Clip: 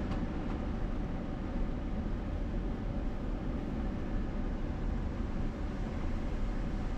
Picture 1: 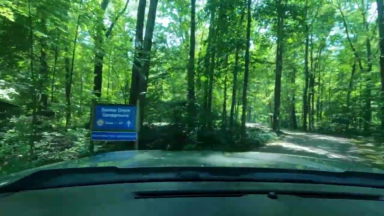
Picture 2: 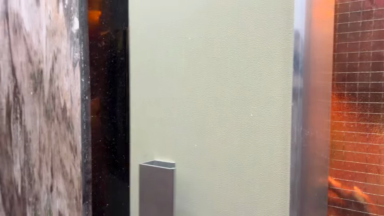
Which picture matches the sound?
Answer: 1